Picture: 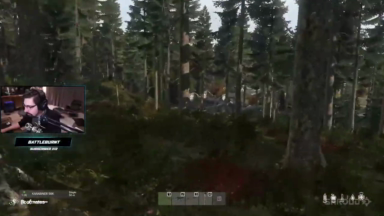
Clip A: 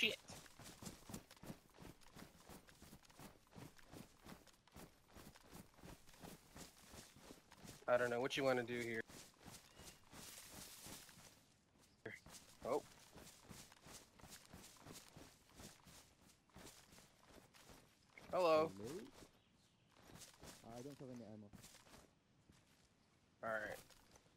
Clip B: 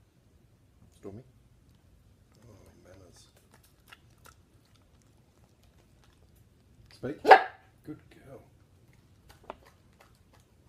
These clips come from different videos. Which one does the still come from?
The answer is A